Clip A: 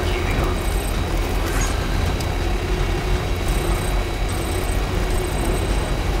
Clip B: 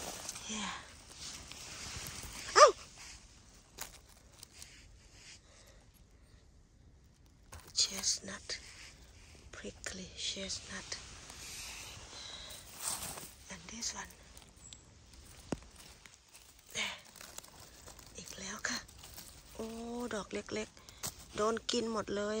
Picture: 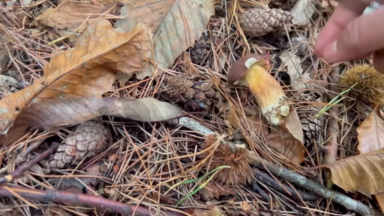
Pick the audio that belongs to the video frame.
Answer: B